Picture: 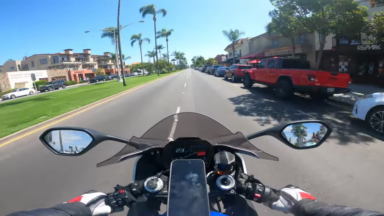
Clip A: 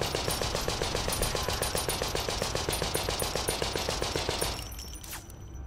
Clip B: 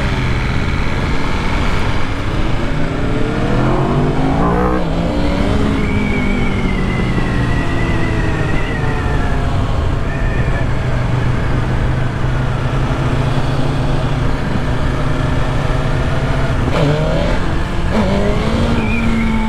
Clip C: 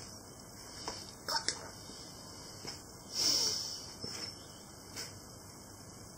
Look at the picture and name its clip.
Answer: B